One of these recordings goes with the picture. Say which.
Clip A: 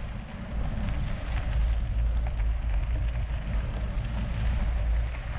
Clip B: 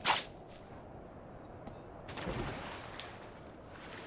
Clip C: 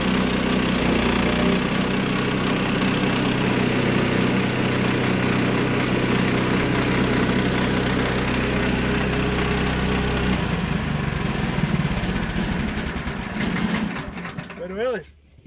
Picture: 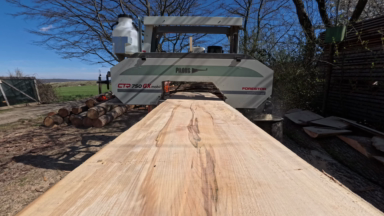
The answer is C